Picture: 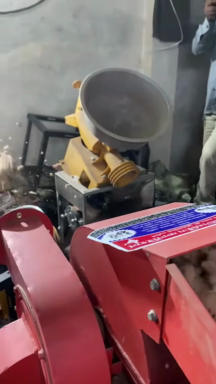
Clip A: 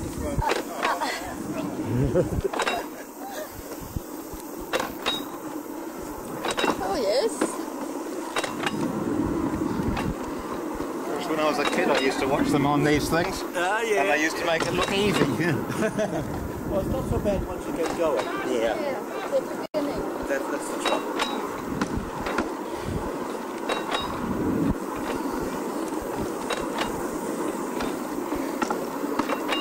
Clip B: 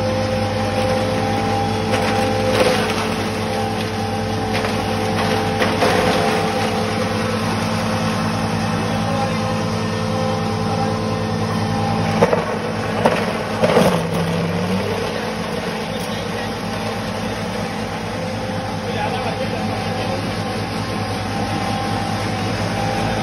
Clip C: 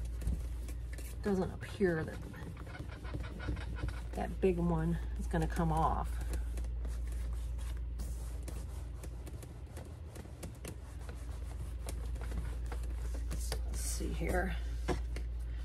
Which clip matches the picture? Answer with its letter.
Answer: B